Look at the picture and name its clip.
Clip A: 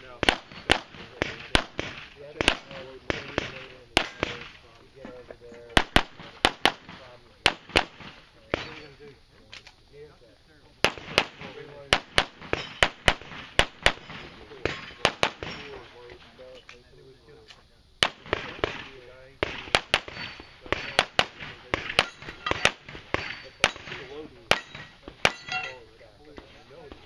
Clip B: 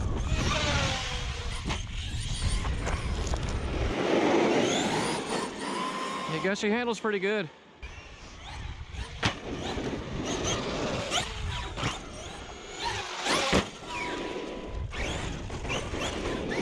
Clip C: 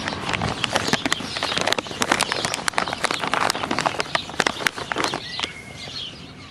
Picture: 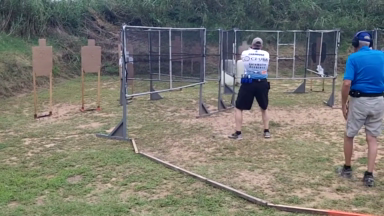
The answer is A